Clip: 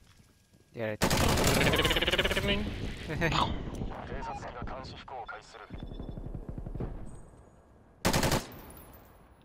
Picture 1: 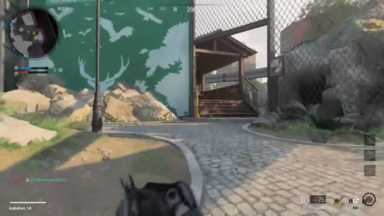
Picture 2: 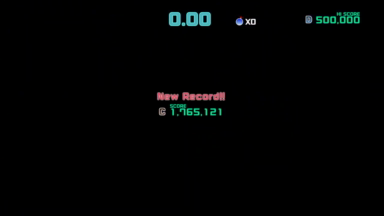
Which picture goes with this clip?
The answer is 1